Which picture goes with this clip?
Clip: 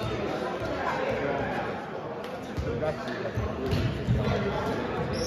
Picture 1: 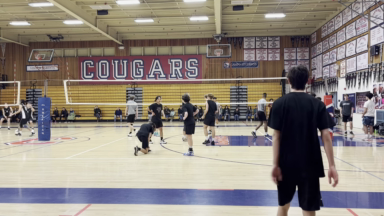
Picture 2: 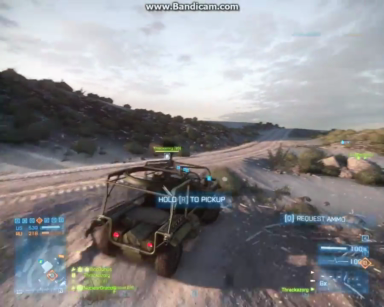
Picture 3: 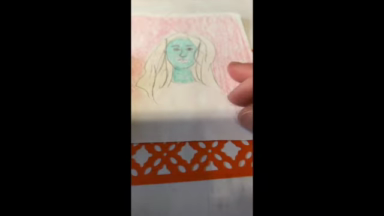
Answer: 1